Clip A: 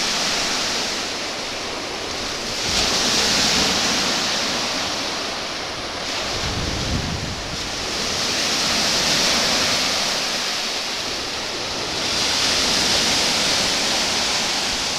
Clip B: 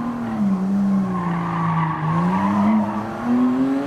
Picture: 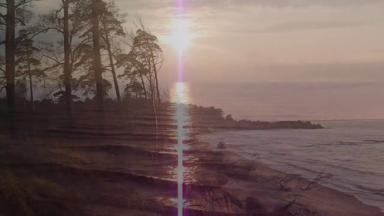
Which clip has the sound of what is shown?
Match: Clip A